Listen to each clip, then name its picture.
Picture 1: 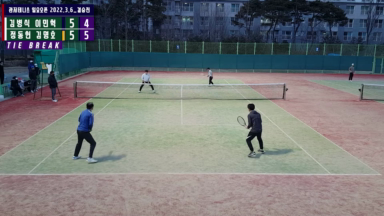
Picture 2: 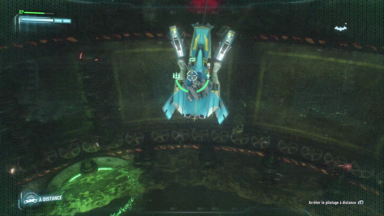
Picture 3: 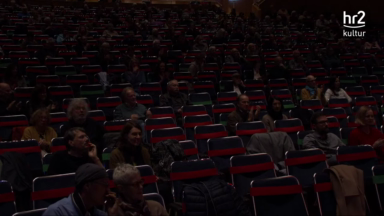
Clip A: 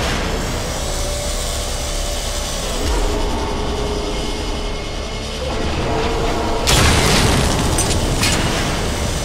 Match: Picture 2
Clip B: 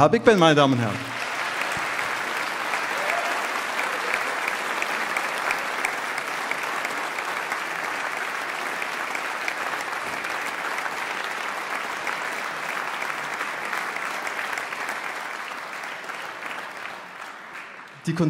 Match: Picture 3